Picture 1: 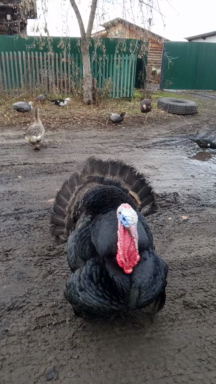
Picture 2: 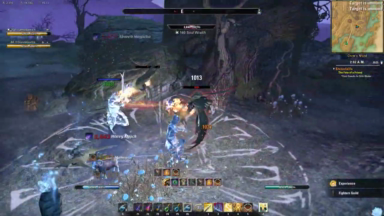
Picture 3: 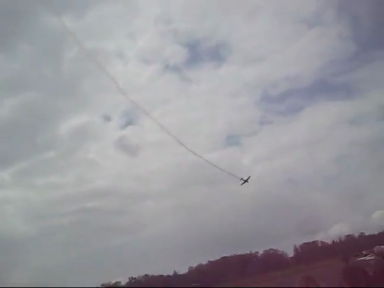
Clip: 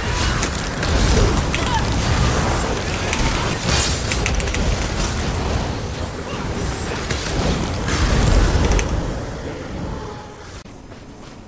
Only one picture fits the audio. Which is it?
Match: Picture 2